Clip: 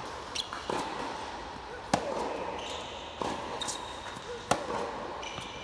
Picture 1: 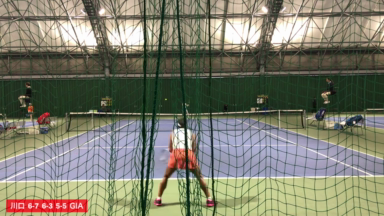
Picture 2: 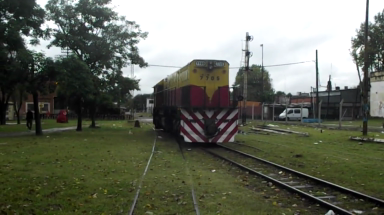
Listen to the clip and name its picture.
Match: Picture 1